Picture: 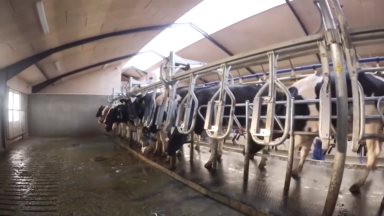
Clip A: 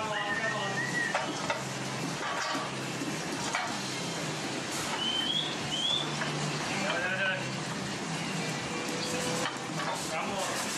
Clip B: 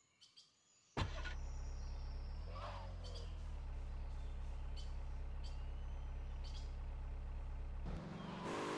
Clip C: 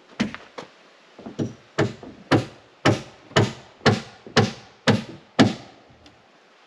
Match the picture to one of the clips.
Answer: A